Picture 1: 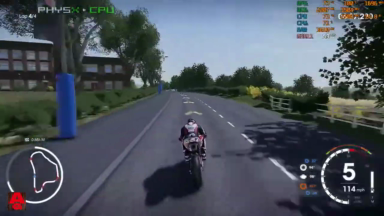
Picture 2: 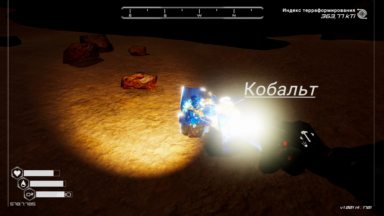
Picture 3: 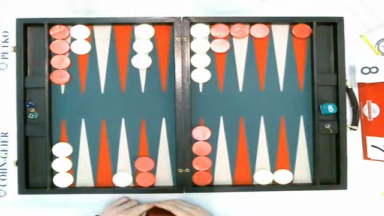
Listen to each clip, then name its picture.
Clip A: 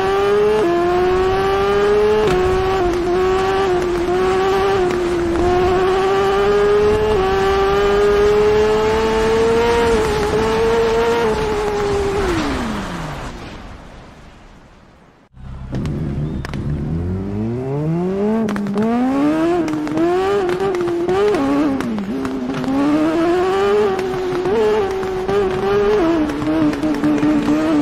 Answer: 1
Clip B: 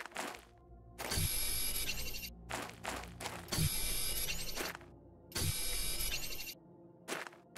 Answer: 2